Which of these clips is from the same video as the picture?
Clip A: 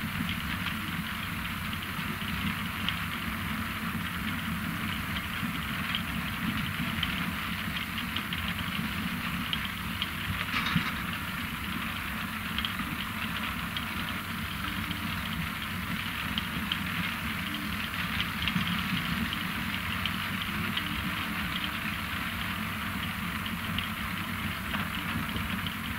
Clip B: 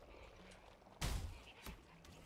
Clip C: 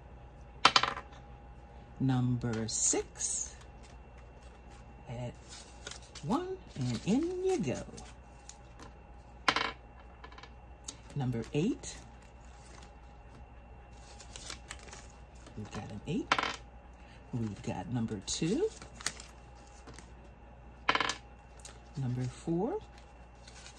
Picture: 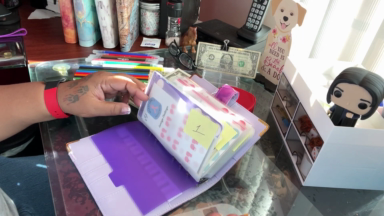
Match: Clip C